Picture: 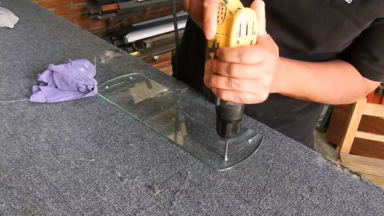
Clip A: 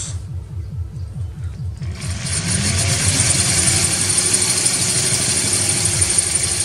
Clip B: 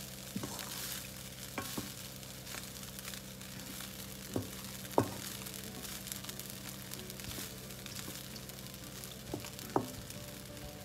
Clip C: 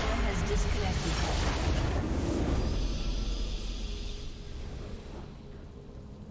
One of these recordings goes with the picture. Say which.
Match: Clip A